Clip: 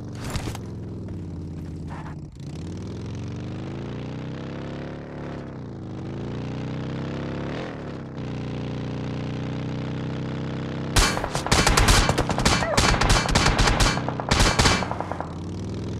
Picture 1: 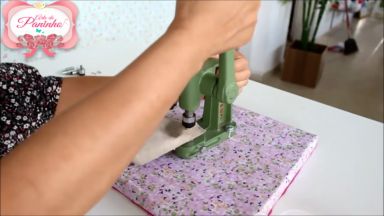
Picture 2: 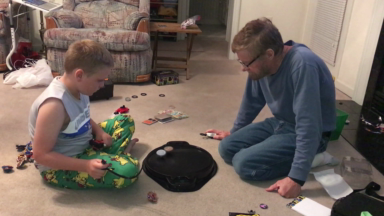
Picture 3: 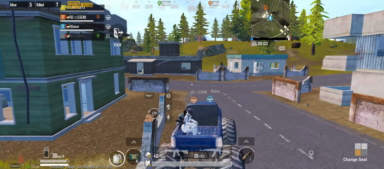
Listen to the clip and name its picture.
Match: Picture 3